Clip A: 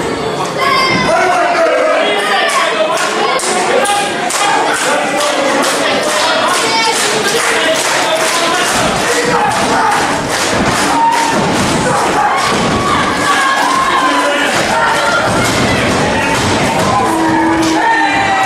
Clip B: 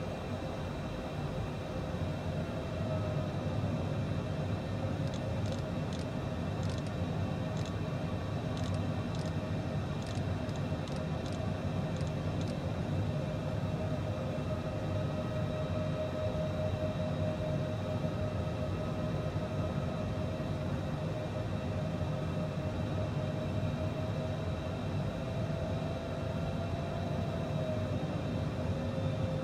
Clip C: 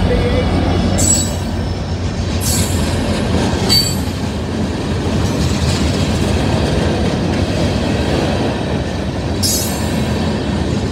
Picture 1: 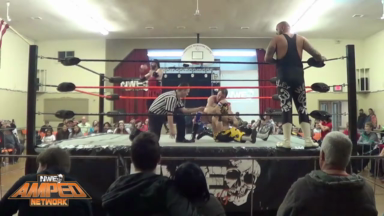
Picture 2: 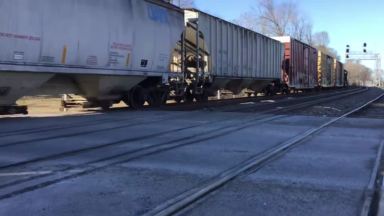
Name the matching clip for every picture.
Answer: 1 A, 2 C